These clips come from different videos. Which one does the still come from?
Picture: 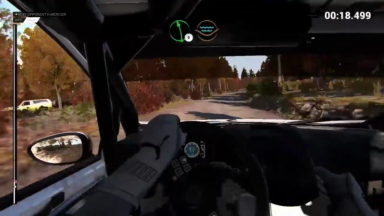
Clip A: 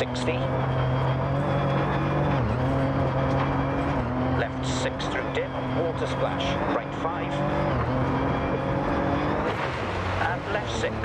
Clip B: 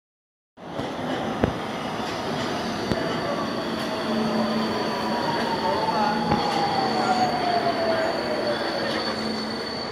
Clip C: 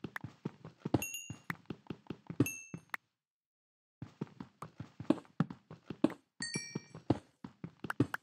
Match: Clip A